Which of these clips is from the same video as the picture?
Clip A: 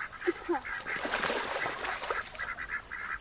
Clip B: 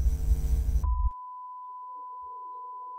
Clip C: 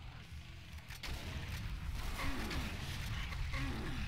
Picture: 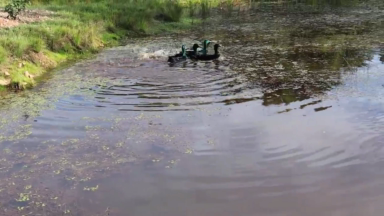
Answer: A